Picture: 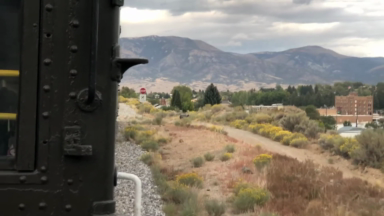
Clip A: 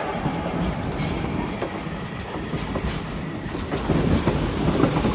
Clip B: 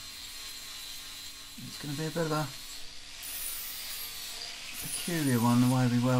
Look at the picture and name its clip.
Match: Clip A